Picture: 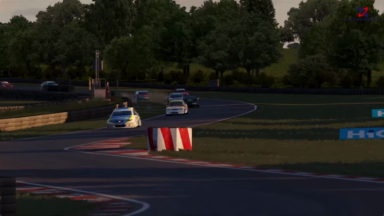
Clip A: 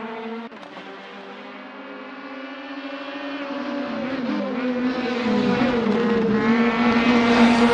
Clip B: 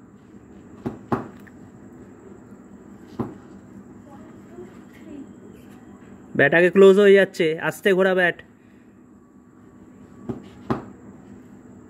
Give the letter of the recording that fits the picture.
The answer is A